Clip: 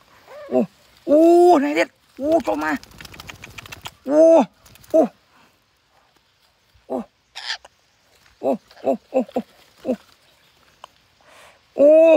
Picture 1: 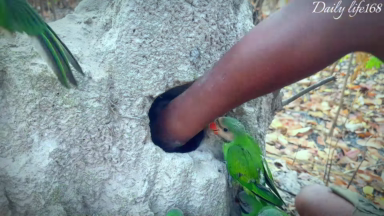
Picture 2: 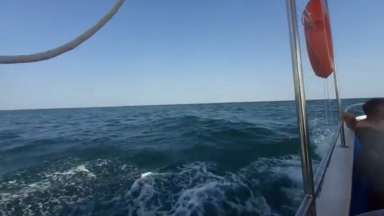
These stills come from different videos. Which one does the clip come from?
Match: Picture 1